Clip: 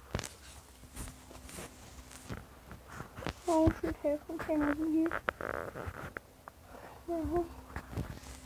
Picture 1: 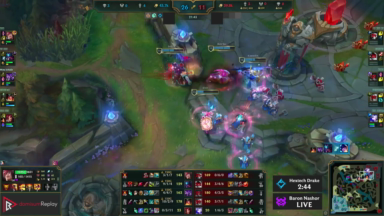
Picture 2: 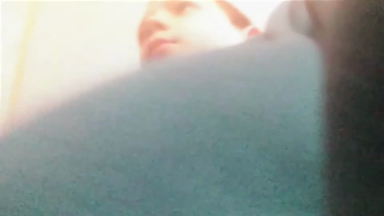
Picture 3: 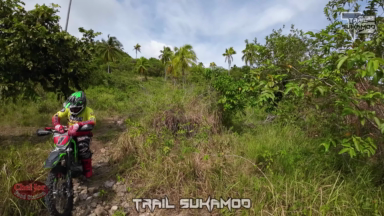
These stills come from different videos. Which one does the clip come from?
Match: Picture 2